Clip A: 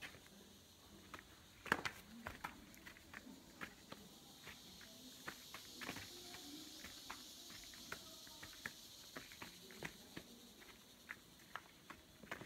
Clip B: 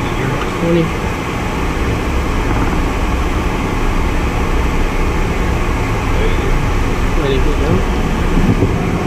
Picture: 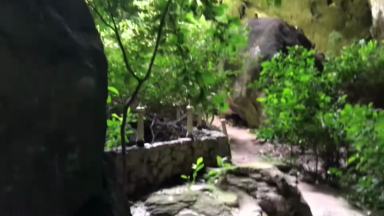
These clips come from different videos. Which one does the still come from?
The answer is A